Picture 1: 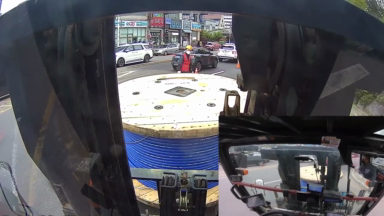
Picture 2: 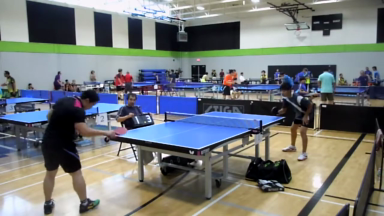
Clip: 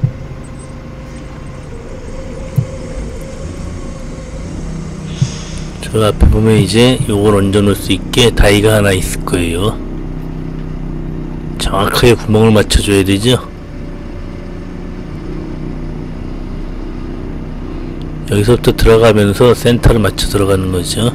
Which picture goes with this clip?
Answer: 1